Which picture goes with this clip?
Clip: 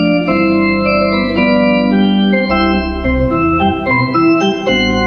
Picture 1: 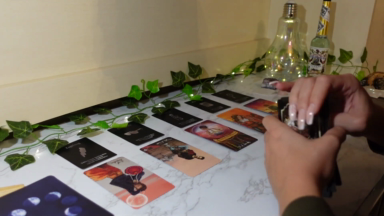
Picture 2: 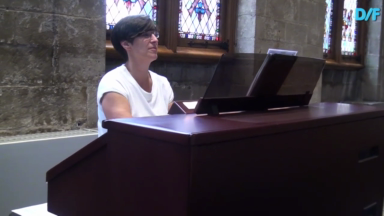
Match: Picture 2